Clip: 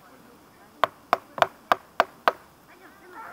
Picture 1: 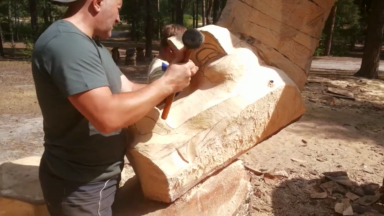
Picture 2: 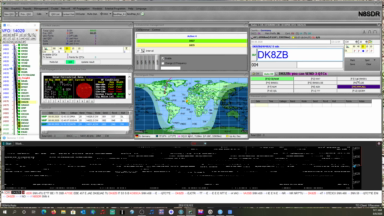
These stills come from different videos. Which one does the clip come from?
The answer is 1